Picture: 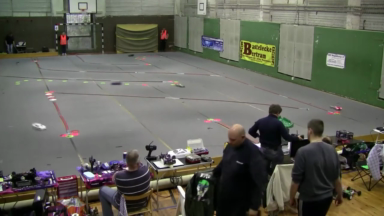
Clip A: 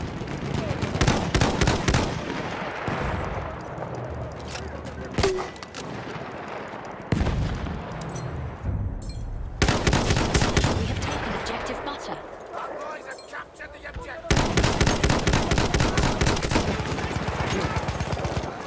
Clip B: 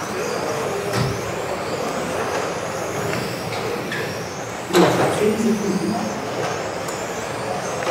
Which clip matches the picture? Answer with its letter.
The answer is B